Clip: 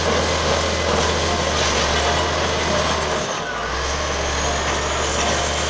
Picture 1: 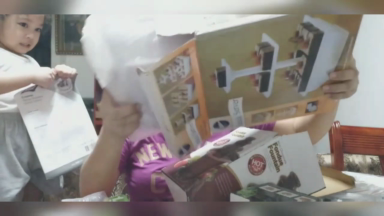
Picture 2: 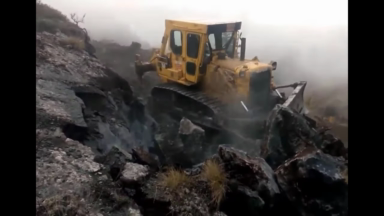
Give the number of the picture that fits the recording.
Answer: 2